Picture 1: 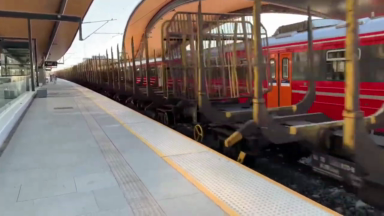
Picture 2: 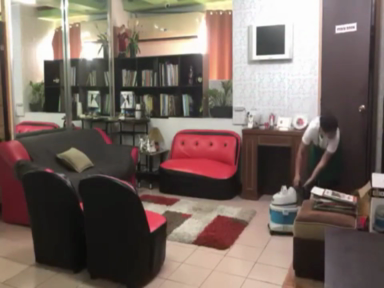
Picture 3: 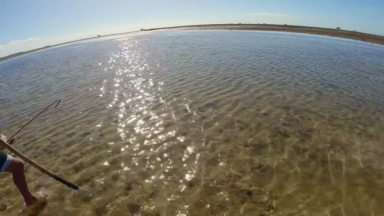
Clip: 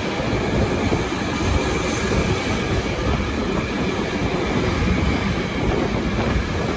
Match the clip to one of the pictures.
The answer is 1